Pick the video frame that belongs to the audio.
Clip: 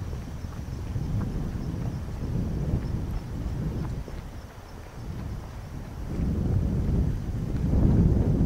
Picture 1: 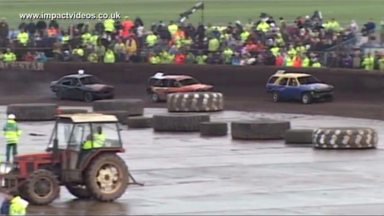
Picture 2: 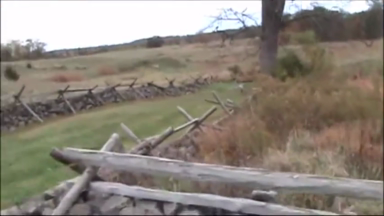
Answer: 2